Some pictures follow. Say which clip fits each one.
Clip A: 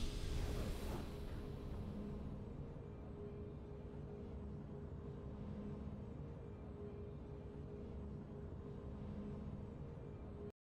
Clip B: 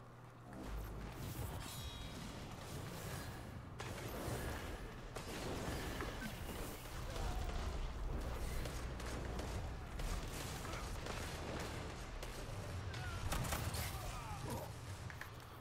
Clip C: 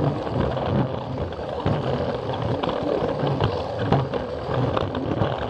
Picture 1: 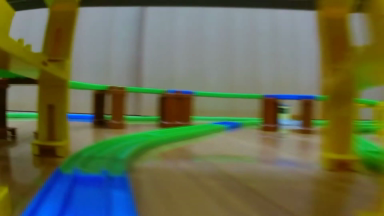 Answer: C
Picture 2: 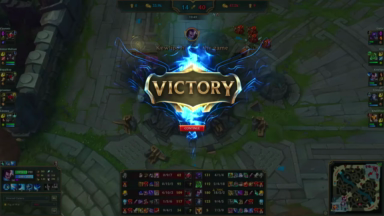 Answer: A